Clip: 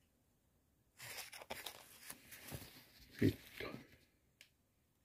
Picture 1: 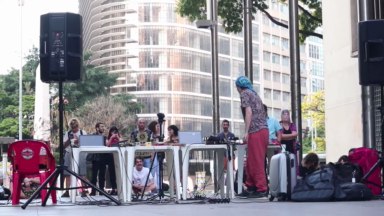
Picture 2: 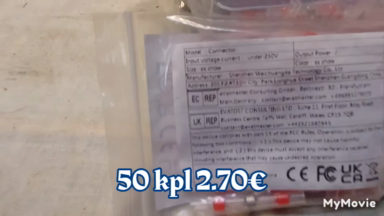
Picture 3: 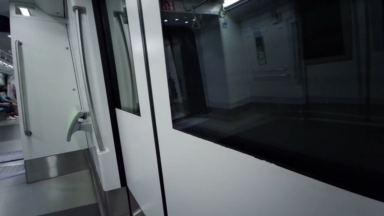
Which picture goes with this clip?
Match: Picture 2